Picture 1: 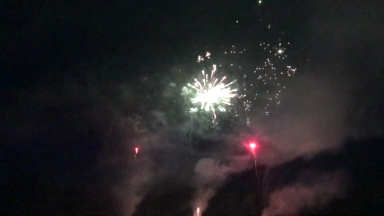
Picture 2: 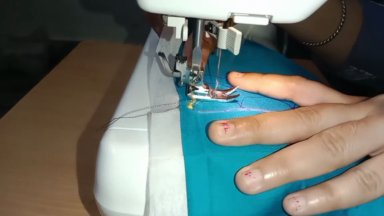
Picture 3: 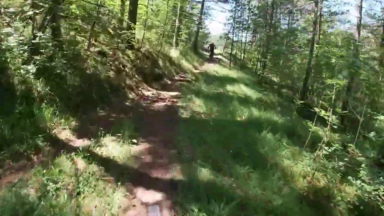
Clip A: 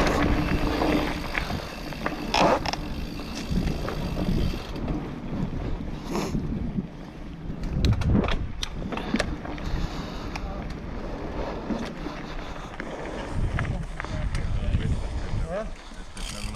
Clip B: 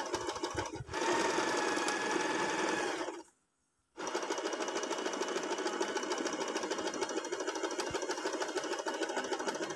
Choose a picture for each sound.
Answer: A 3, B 2